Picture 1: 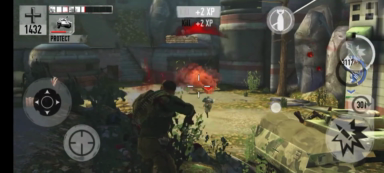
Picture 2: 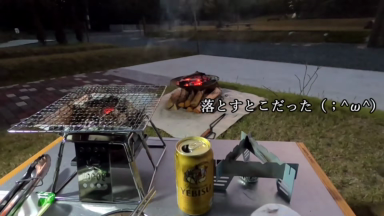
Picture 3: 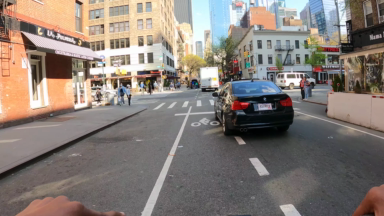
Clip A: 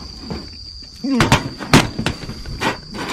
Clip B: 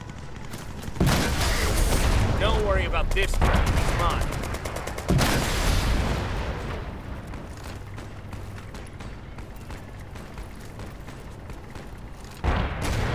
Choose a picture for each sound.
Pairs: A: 2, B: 1